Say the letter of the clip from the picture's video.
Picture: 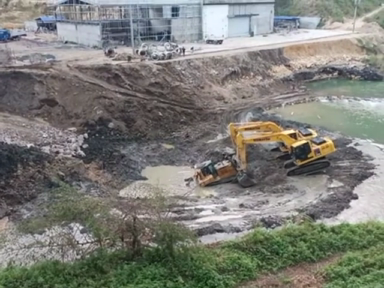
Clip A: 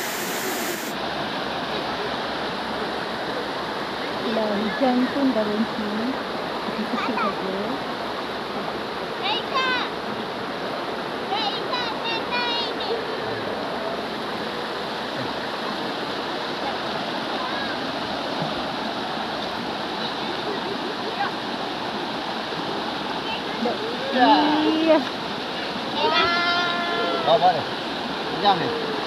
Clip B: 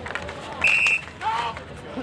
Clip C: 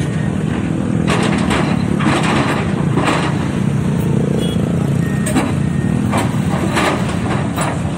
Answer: C